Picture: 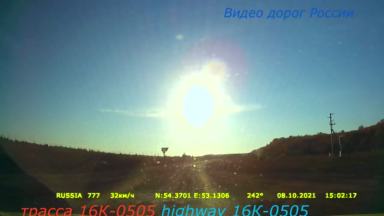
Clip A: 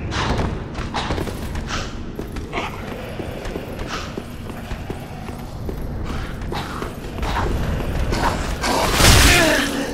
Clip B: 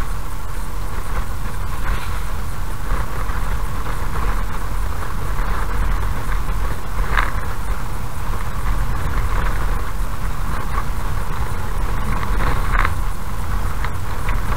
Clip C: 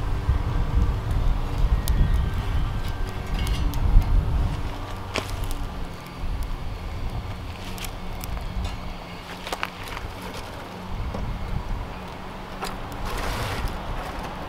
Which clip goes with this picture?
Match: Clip B